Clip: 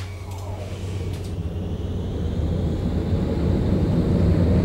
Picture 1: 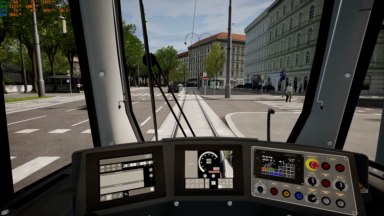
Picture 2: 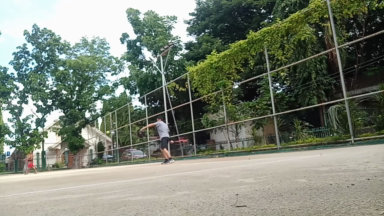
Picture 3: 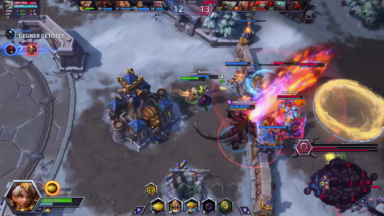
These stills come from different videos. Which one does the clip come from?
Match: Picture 1